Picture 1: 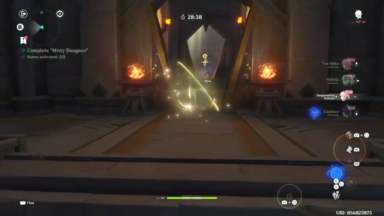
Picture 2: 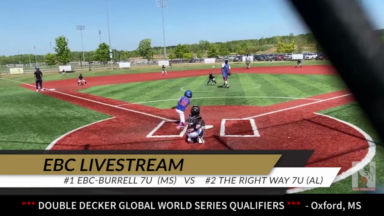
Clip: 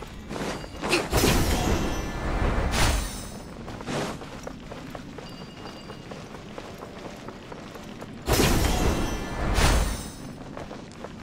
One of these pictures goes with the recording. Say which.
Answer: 1